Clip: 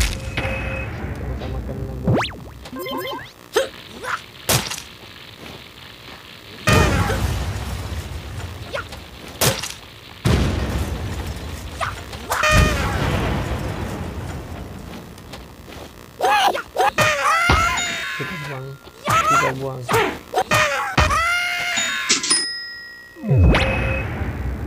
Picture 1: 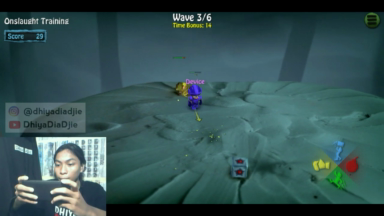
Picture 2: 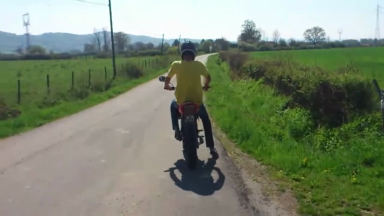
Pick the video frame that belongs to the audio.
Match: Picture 1